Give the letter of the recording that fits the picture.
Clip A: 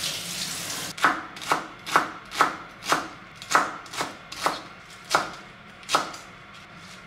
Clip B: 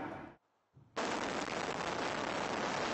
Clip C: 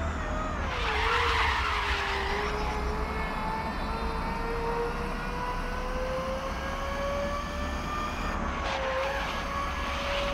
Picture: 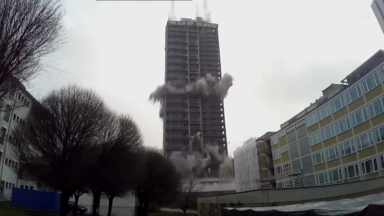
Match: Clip B